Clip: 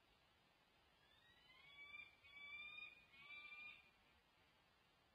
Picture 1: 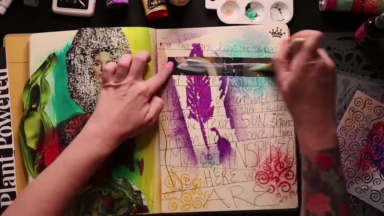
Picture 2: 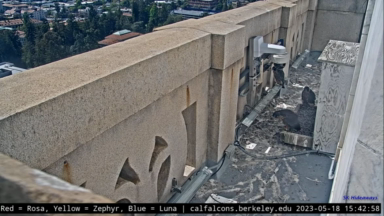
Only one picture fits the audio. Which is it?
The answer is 2